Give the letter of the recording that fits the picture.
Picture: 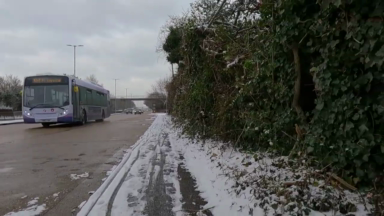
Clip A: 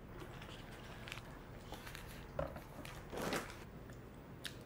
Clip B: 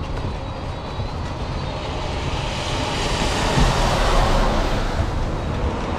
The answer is B